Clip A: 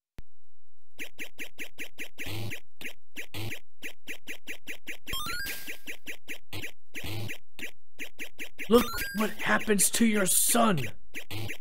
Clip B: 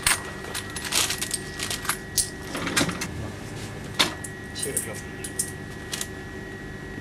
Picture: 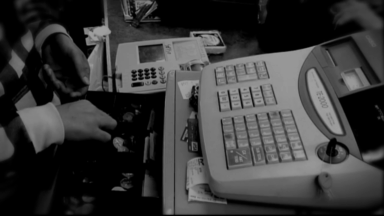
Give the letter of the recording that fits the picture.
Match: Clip B